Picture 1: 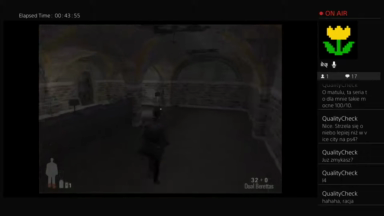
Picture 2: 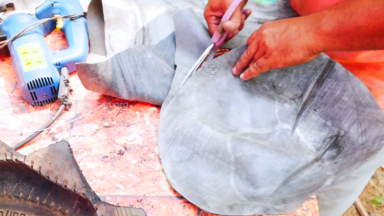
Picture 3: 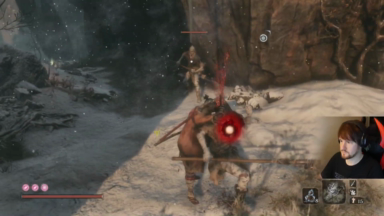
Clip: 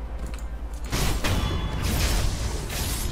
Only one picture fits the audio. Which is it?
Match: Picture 3